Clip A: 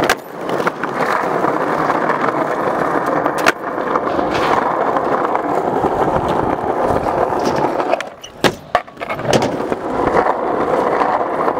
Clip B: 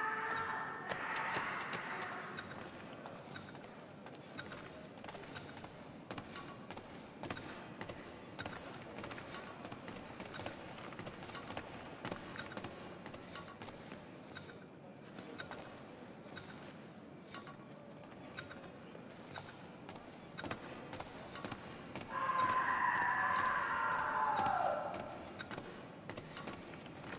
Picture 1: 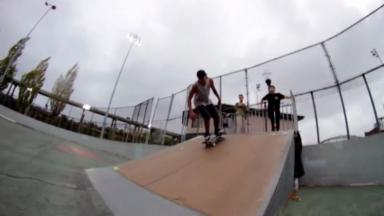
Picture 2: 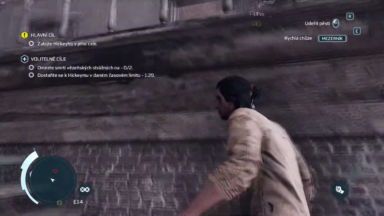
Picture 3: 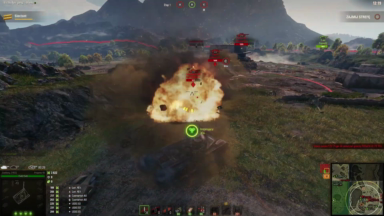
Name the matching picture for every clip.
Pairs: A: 1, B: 2